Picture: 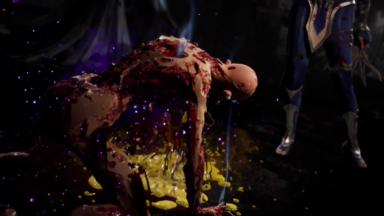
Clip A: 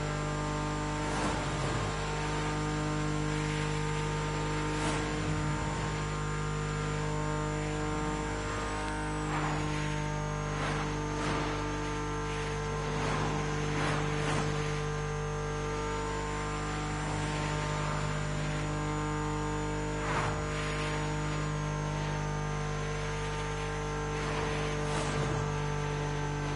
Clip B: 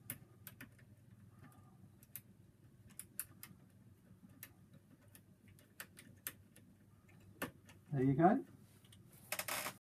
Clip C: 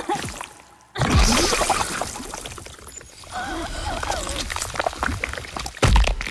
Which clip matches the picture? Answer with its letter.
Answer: C